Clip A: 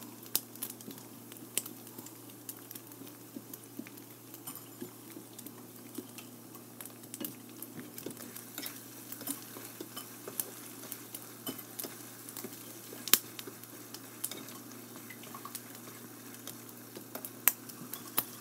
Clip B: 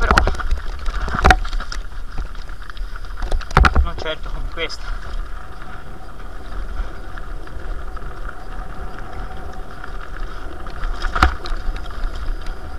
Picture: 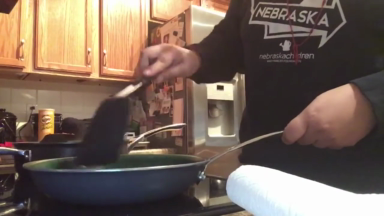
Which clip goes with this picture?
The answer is A